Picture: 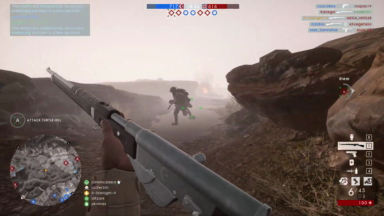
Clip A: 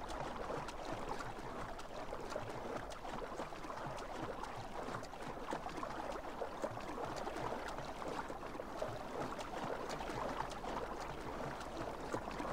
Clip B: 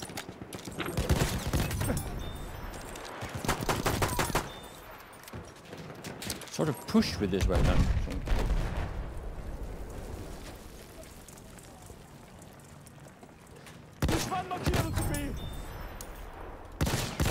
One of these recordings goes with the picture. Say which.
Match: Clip B